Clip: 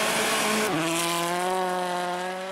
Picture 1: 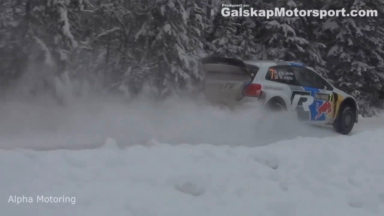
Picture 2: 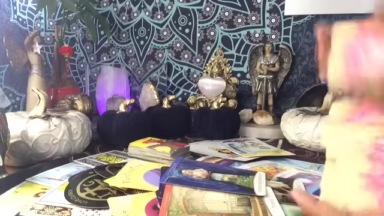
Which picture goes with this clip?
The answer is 1